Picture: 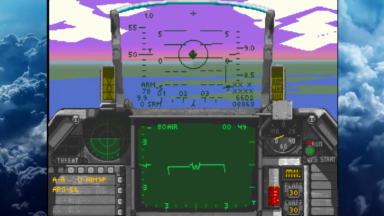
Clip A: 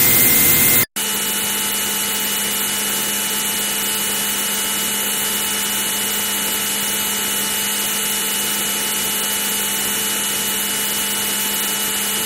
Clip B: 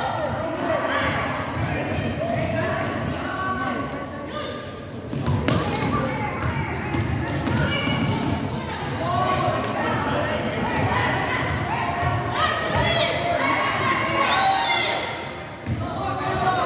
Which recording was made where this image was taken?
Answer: A